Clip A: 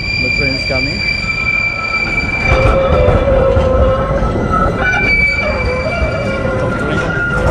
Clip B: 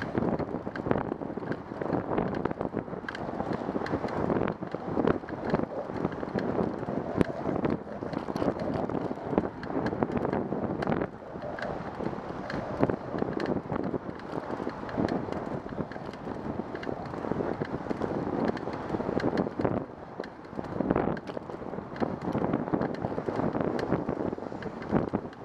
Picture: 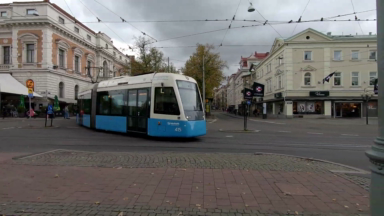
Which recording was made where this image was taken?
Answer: A